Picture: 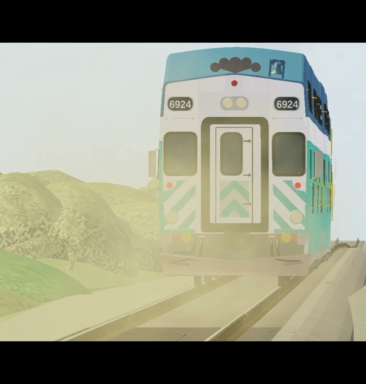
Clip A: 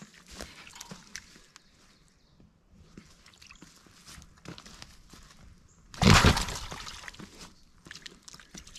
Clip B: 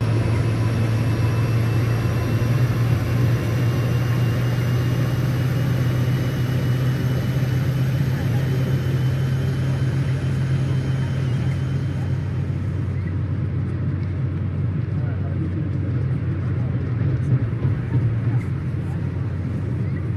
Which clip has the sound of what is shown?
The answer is B